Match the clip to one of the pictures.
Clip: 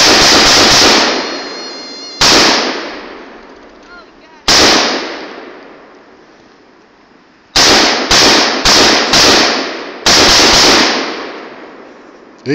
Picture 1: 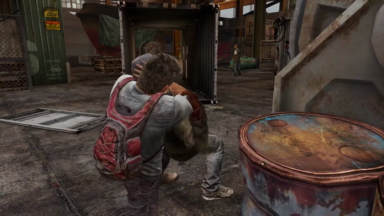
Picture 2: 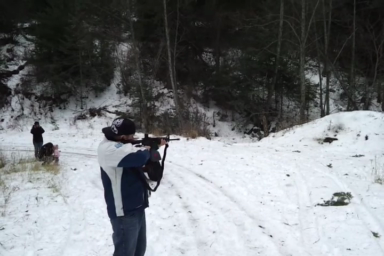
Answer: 2